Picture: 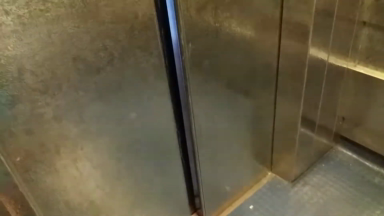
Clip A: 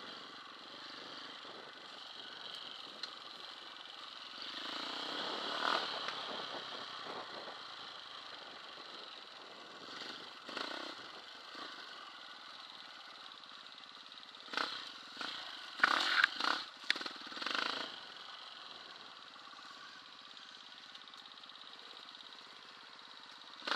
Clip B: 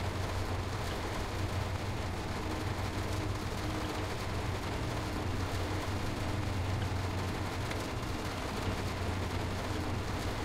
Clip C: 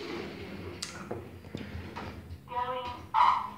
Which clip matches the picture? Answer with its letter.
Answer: C